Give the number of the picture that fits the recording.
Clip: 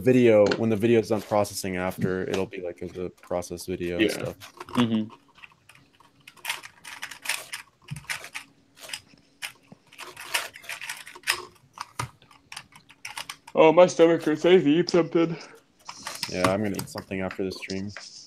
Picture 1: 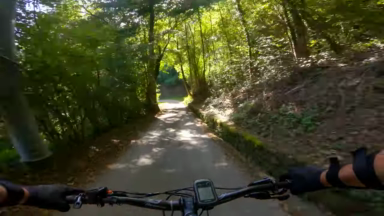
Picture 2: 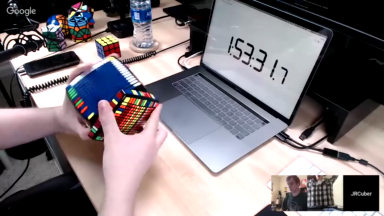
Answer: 2